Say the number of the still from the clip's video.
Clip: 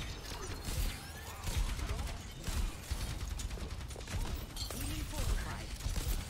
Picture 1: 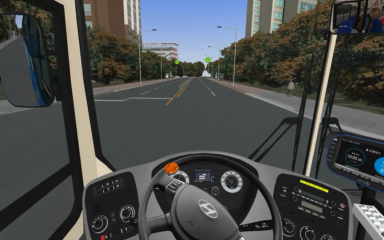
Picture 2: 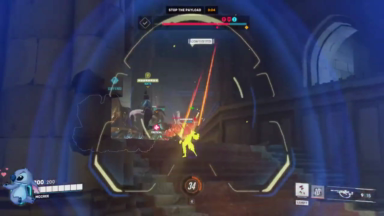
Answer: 2